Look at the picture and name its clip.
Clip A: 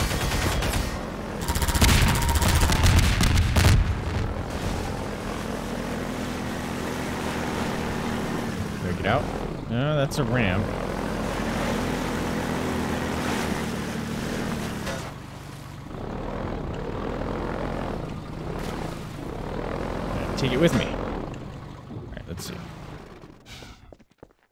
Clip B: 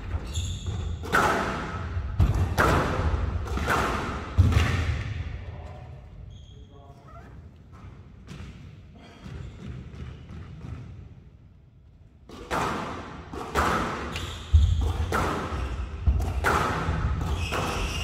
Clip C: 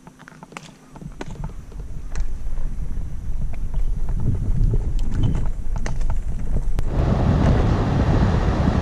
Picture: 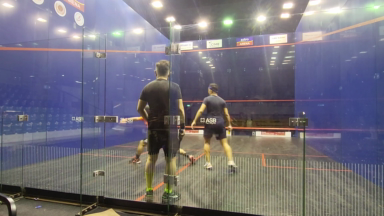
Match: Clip B